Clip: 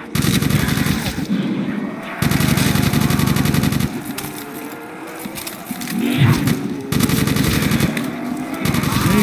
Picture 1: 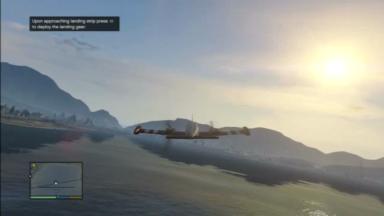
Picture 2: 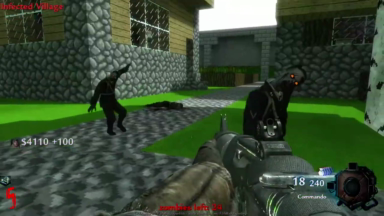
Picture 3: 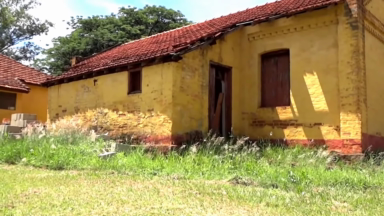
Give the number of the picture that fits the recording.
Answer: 2